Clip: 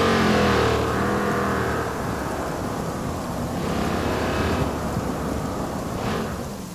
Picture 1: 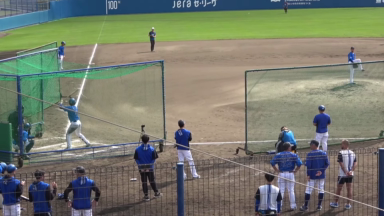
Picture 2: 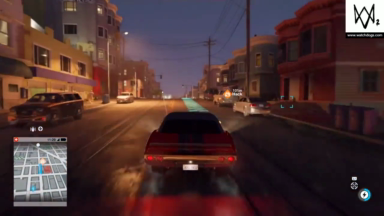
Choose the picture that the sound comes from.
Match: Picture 2